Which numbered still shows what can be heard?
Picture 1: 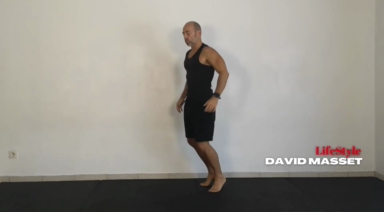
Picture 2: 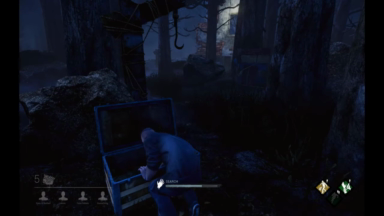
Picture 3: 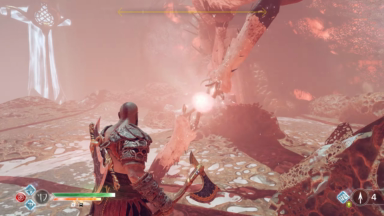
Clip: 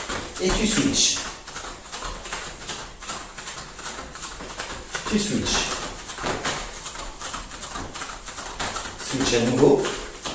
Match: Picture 1